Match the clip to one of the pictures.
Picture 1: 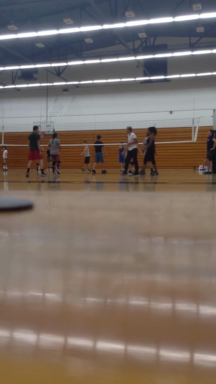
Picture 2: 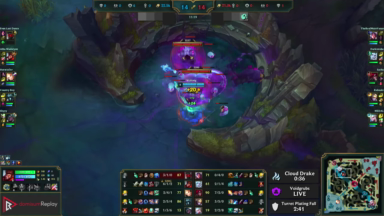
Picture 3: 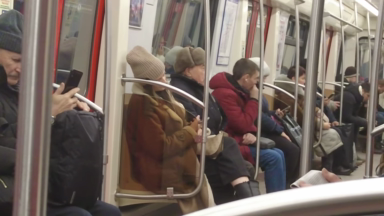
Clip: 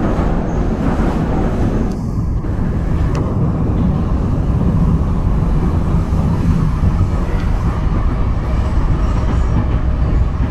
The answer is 3